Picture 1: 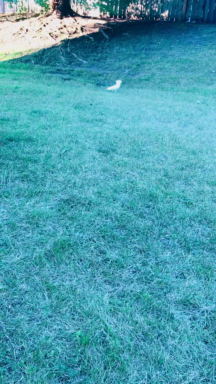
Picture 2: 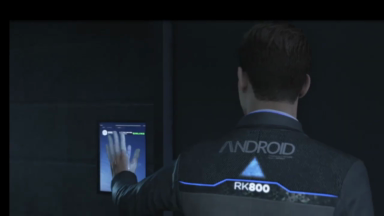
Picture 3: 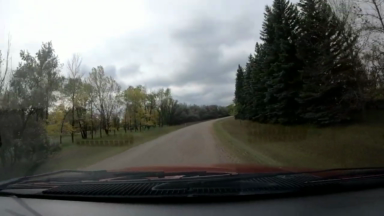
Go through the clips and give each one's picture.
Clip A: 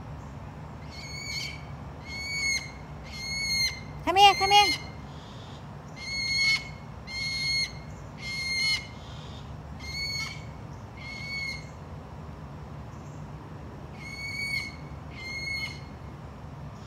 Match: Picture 1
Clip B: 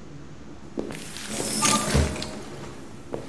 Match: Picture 2